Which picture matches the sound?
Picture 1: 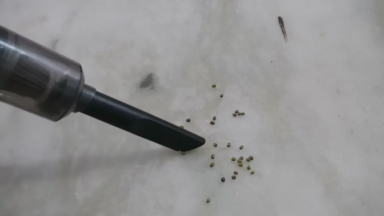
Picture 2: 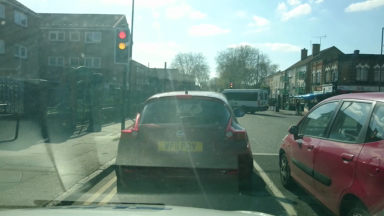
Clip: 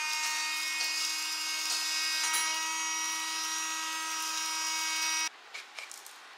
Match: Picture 1